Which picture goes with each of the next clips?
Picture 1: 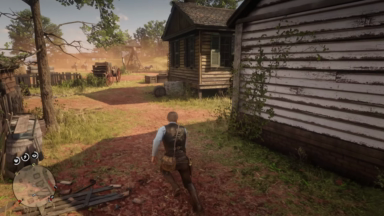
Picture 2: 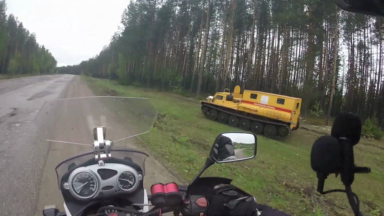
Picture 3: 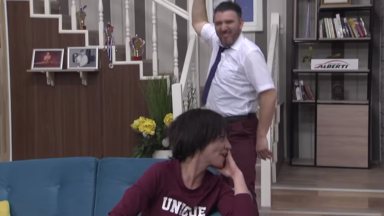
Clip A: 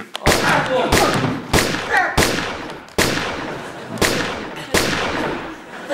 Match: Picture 3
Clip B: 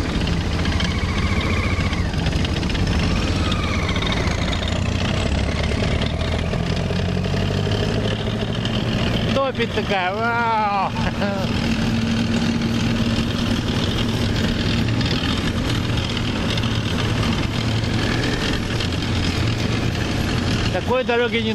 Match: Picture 2